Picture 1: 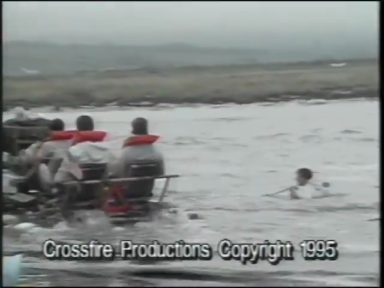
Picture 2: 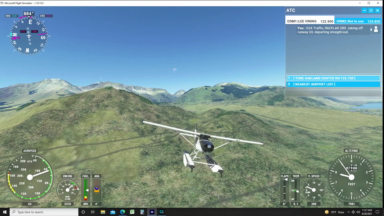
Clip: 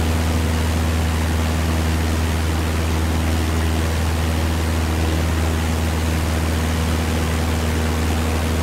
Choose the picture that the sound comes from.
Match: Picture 2